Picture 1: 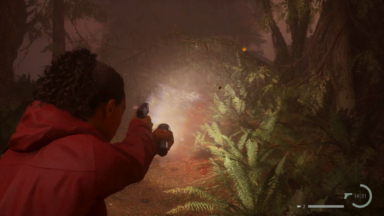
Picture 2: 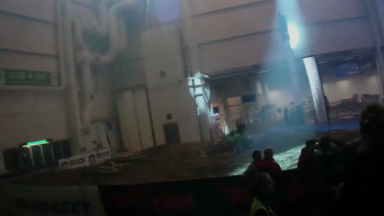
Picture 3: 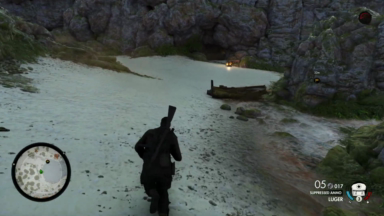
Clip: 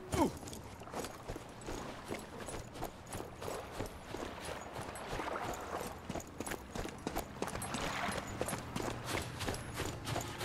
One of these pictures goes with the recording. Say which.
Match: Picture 3